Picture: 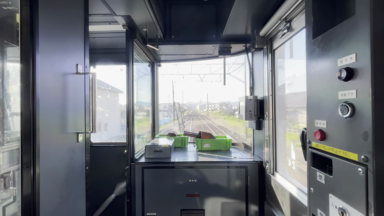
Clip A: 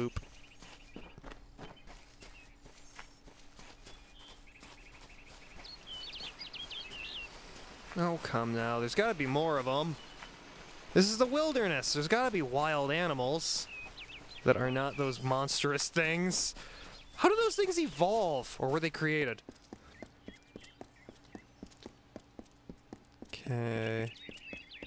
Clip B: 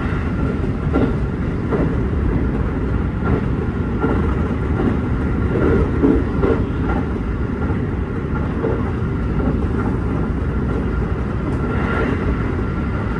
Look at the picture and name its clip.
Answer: B